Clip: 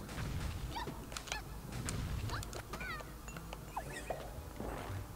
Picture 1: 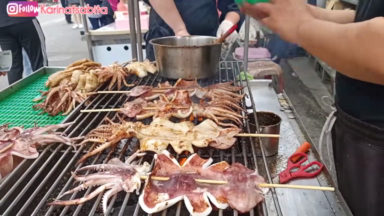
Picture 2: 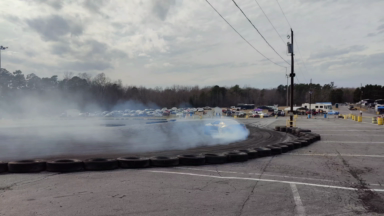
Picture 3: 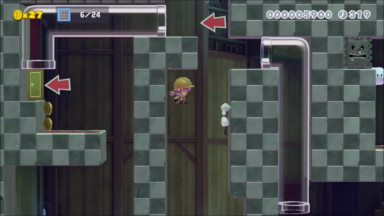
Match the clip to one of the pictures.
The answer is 3